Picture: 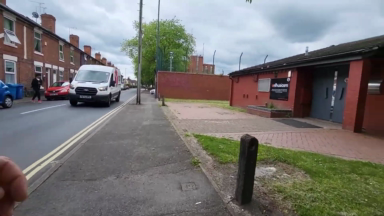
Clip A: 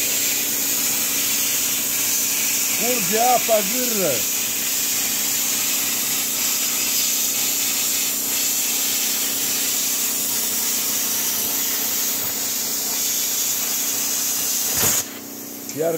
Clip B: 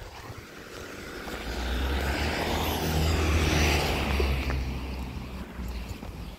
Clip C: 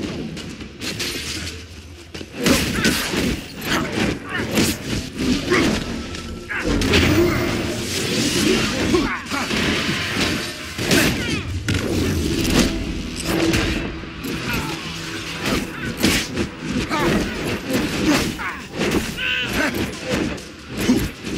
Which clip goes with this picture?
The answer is B